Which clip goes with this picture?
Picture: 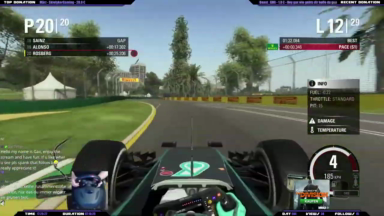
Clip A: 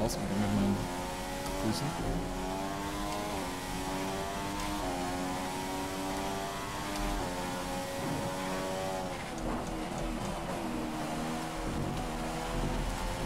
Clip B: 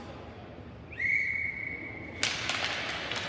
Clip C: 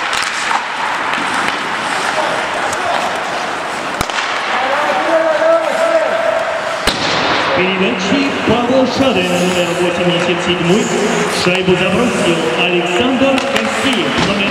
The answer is A